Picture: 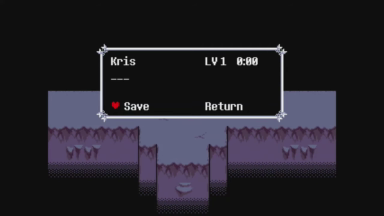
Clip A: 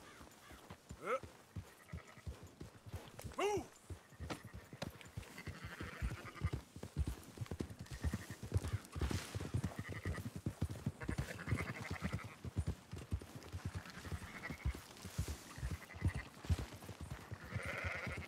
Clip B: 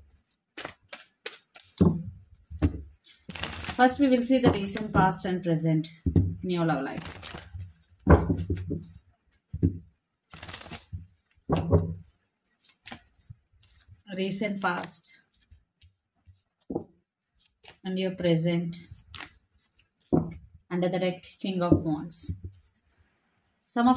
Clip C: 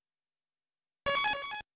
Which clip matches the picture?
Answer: C